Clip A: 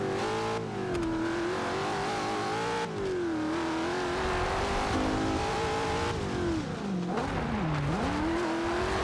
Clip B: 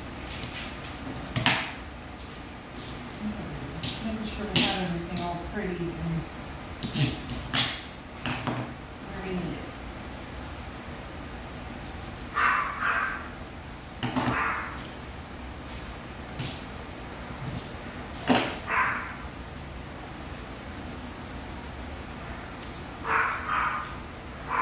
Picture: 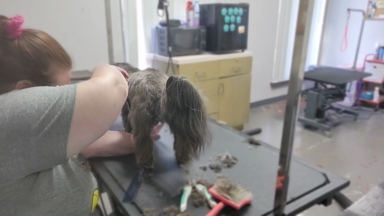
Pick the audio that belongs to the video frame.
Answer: B